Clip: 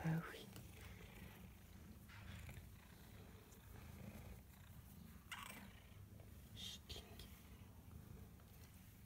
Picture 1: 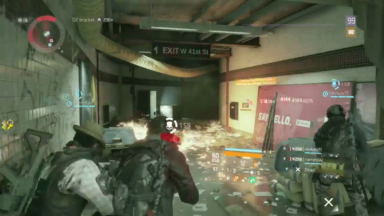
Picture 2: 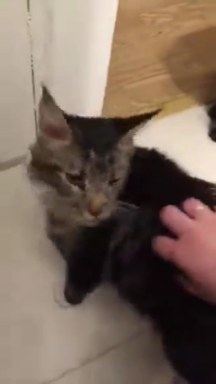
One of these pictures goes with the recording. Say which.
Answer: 2